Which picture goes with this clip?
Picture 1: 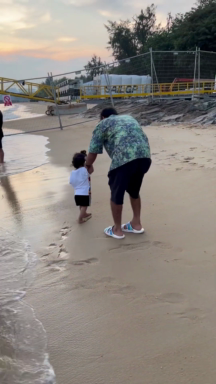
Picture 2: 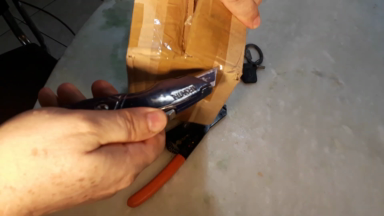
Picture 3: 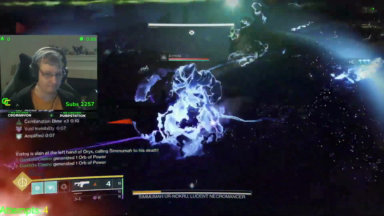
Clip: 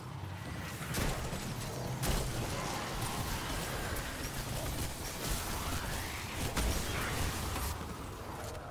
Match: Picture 3